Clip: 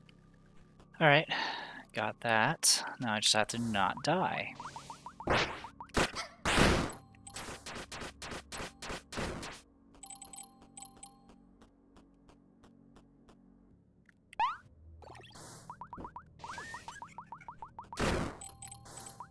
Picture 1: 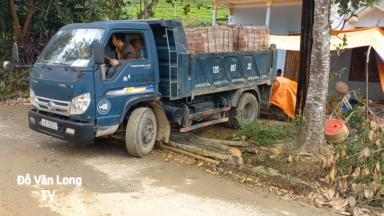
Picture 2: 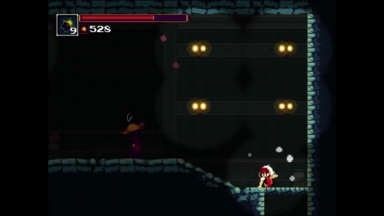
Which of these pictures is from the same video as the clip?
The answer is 2